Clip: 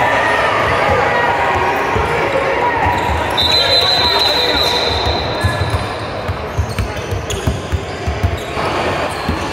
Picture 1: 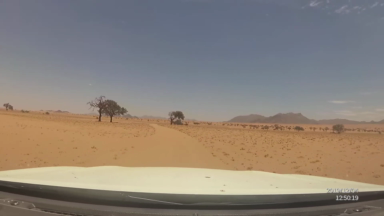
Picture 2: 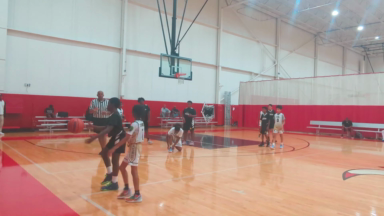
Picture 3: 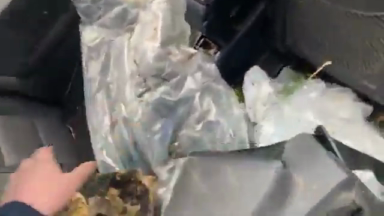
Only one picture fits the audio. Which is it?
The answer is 2